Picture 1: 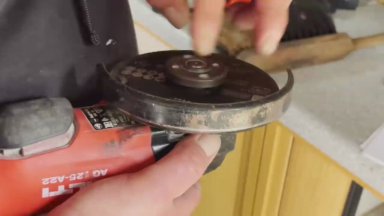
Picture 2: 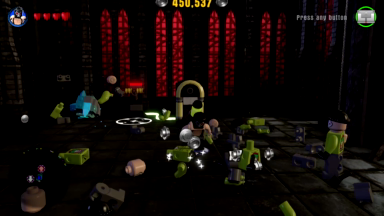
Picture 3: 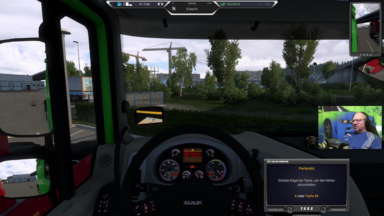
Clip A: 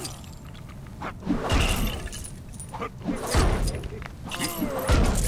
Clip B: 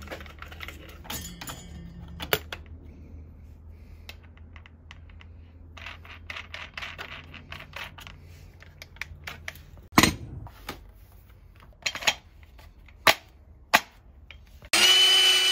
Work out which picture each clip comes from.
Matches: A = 2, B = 1